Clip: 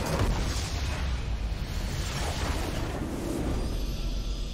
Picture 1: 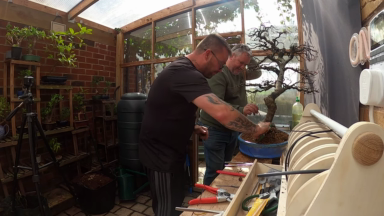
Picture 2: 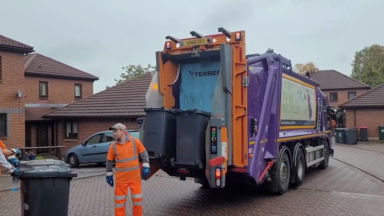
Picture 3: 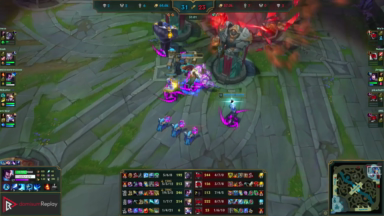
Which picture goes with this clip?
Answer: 3